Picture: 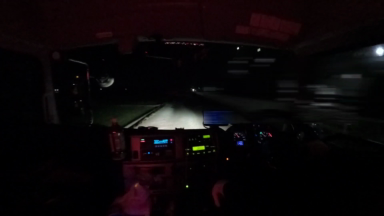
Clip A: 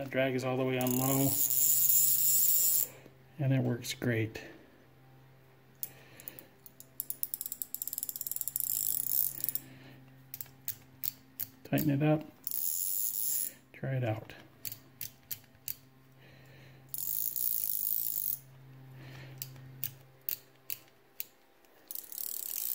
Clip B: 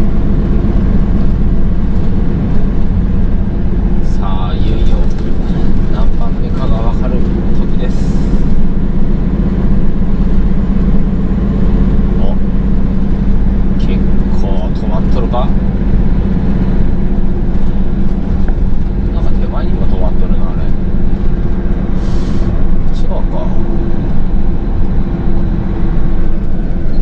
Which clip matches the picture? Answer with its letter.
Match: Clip B